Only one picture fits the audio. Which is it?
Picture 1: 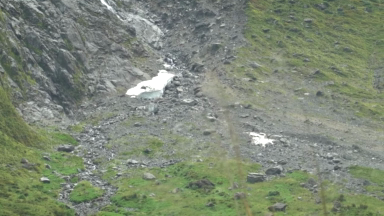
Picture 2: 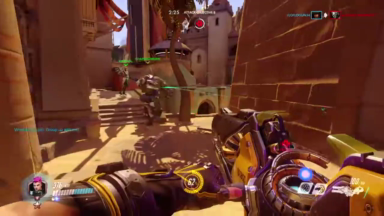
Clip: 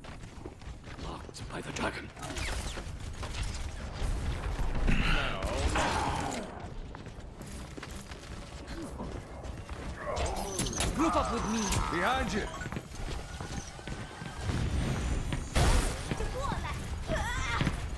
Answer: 2